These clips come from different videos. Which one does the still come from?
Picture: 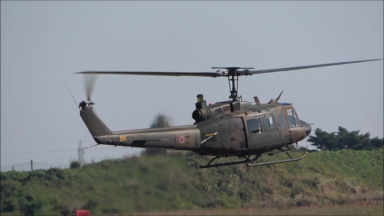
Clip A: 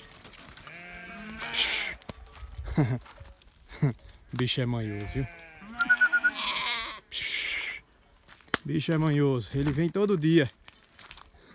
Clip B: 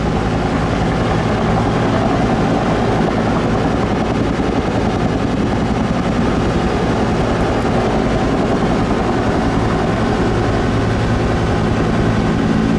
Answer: B